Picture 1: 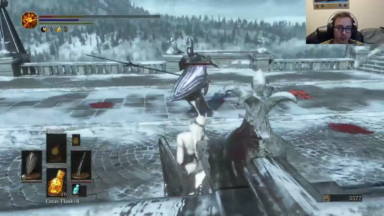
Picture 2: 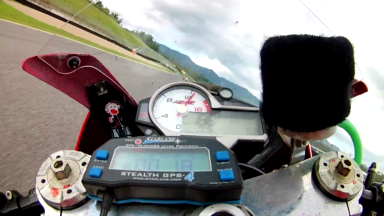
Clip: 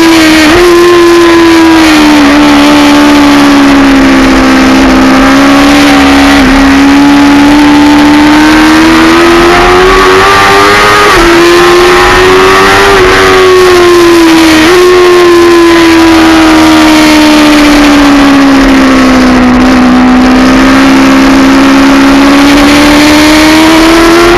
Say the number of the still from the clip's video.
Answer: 2